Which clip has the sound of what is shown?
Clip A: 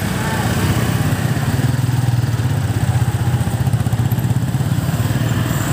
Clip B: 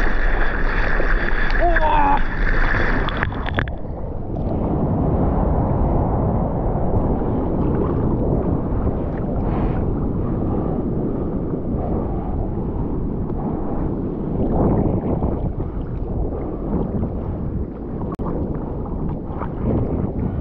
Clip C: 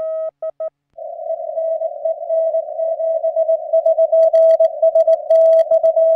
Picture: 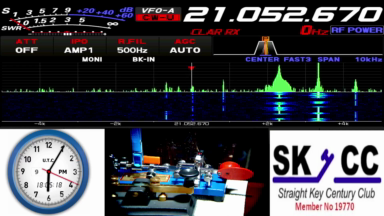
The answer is C